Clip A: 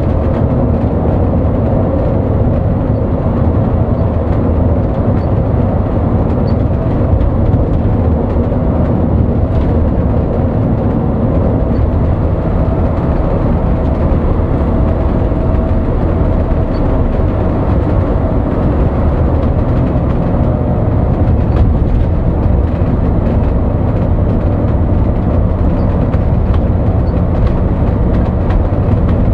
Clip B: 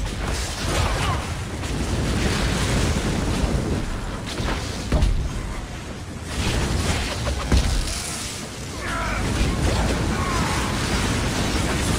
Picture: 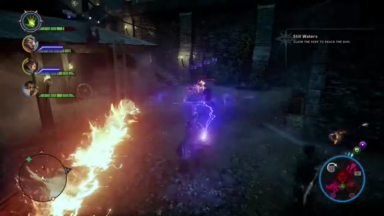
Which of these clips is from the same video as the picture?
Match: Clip B